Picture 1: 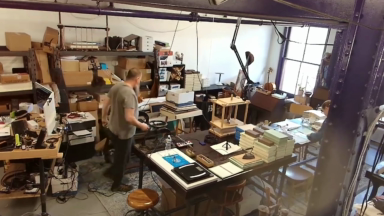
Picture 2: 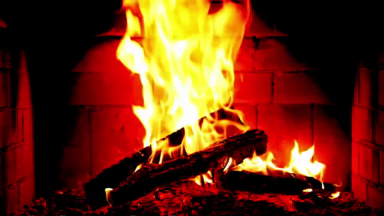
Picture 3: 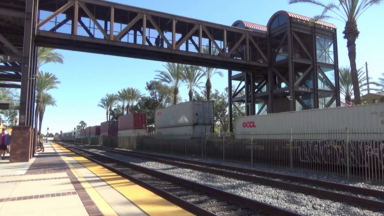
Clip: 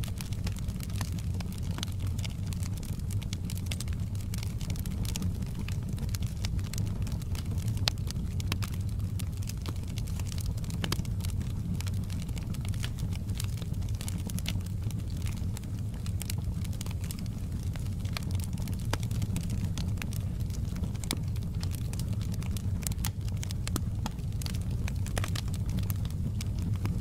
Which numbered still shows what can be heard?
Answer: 2